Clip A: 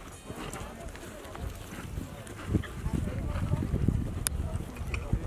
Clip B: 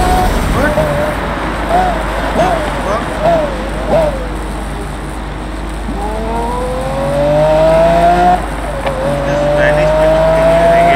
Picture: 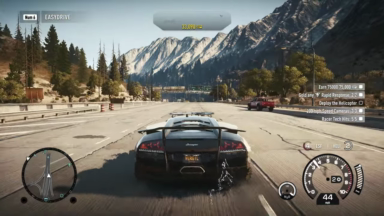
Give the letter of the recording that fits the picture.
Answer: B